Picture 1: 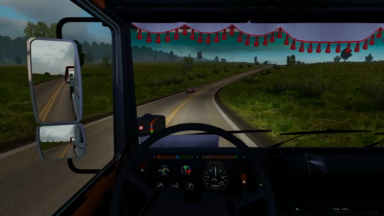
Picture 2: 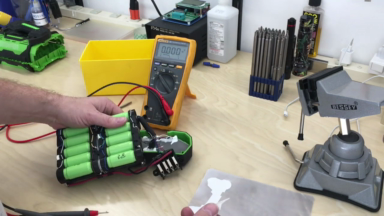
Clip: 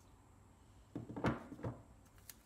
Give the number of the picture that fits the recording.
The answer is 2